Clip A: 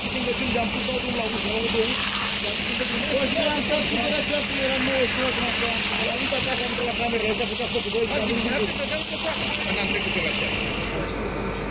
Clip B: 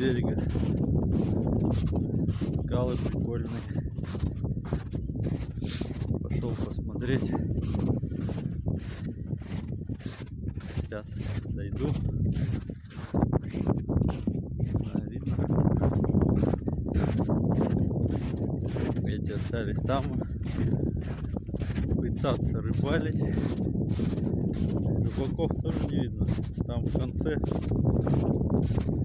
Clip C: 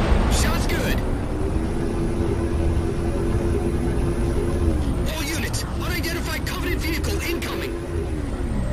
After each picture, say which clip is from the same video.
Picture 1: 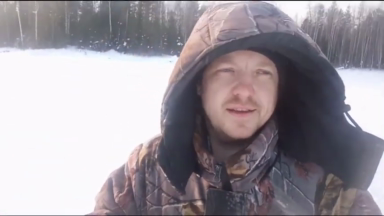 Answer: B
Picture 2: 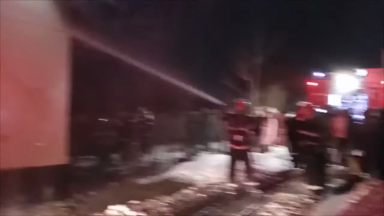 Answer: A